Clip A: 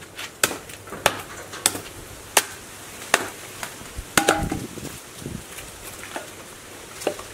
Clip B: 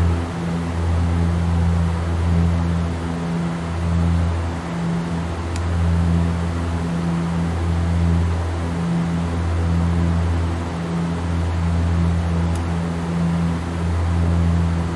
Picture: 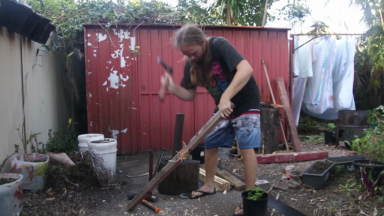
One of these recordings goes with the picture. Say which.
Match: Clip A